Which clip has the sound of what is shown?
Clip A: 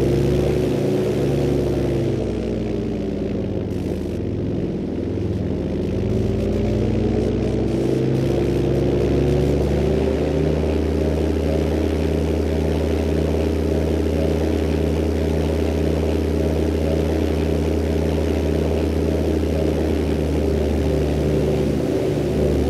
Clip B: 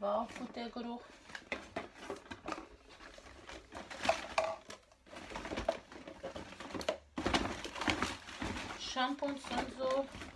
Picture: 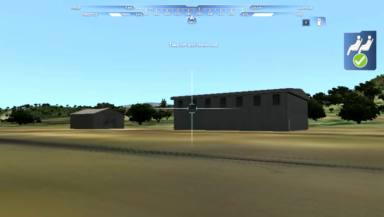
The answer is A